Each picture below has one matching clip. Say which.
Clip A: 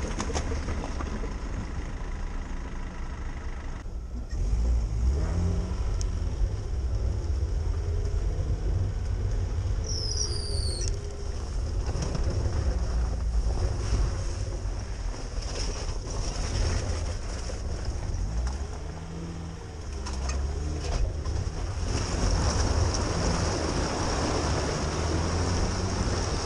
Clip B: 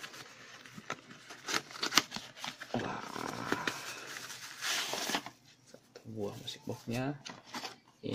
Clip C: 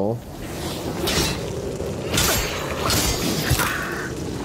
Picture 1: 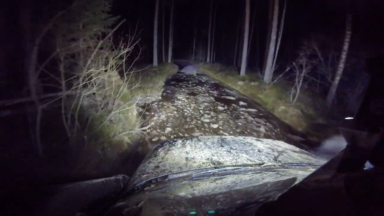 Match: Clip A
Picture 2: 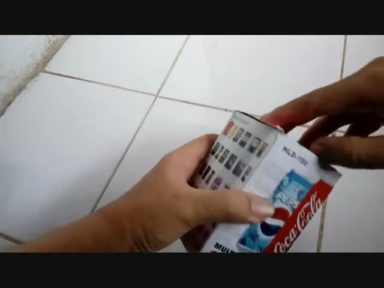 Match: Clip B